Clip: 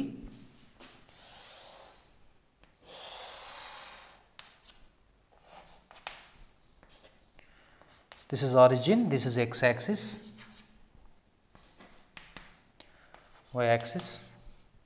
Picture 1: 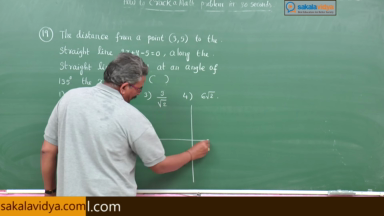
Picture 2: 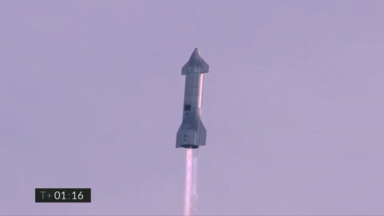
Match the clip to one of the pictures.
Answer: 1